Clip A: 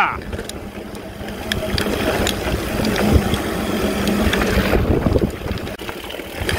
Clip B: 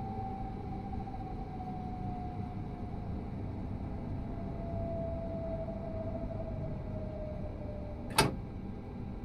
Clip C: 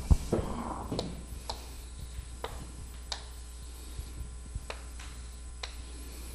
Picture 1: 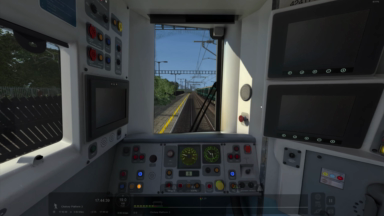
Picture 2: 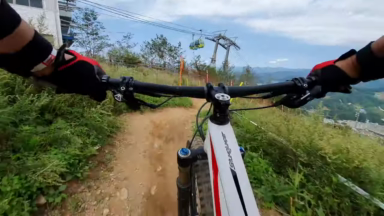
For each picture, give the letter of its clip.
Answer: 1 B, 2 A